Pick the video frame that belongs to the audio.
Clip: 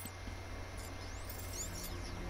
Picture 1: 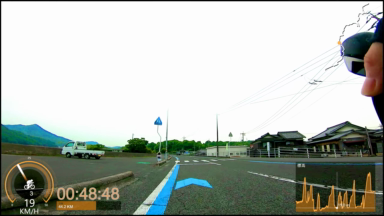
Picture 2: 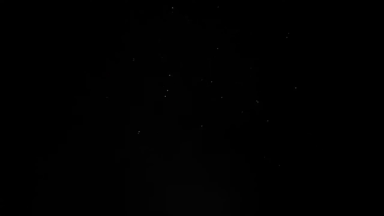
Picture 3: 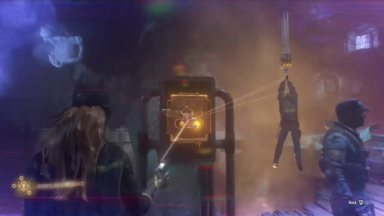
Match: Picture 3